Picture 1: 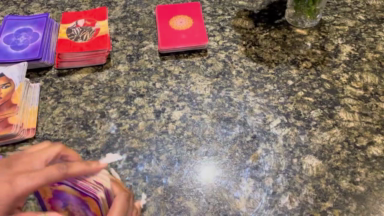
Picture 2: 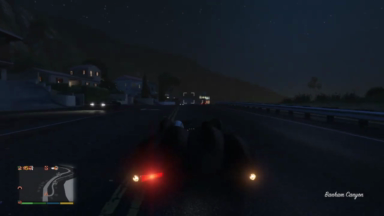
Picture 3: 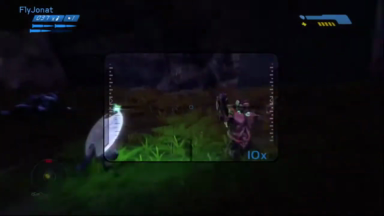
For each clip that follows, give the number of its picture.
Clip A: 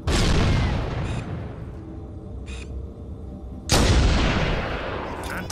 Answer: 3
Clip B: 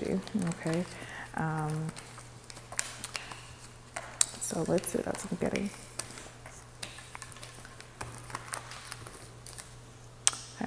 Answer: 1